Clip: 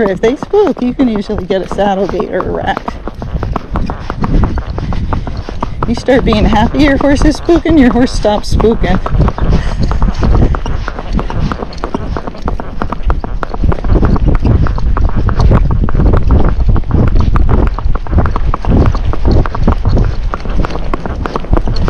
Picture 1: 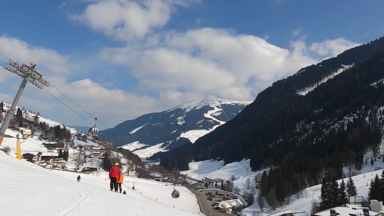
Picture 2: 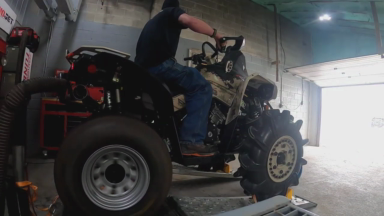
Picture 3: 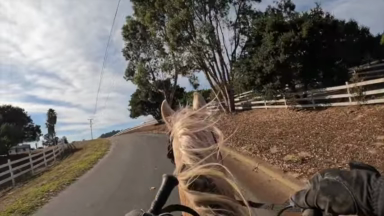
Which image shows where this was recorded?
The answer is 3